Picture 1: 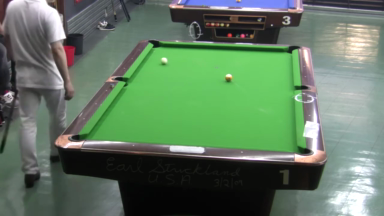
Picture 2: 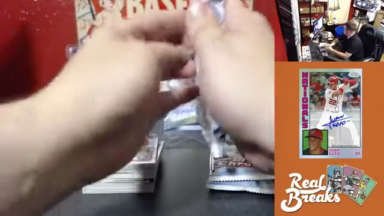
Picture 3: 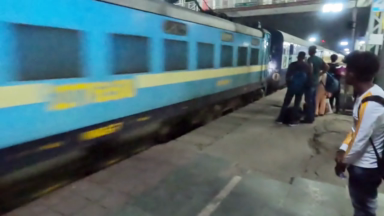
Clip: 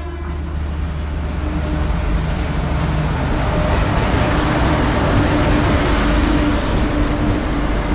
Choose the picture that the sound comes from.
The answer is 3